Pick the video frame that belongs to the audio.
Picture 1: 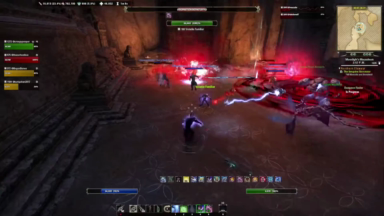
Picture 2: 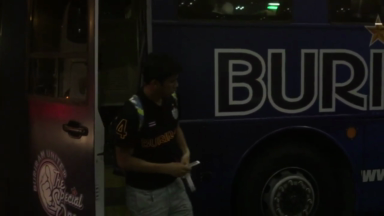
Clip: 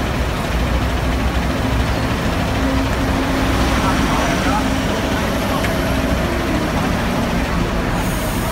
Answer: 2